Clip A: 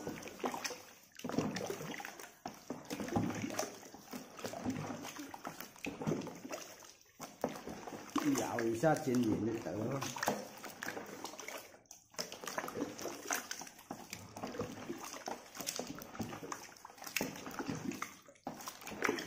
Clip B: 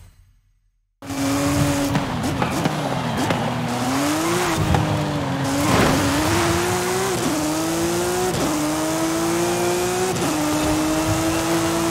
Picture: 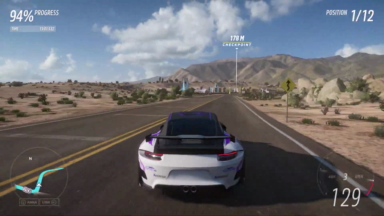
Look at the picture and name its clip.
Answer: B